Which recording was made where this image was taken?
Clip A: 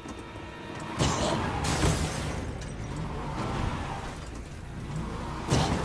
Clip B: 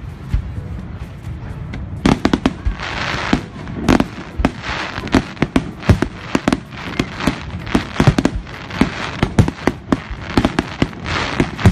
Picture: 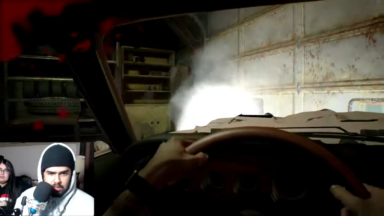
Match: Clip A